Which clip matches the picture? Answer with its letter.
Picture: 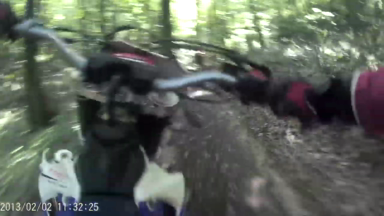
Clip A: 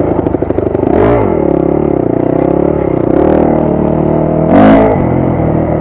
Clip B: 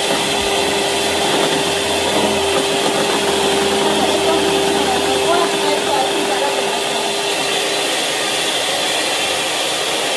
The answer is A